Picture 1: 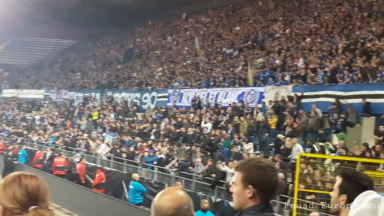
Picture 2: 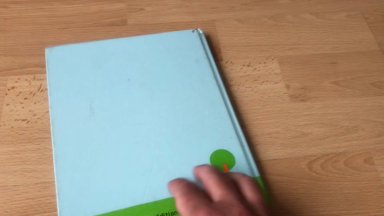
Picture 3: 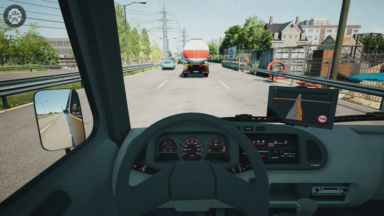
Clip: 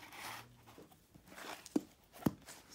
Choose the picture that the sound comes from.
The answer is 2